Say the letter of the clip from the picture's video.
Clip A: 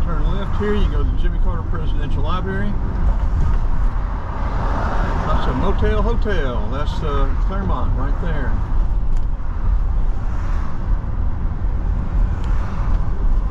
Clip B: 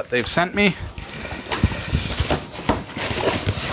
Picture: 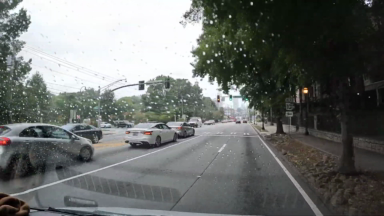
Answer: A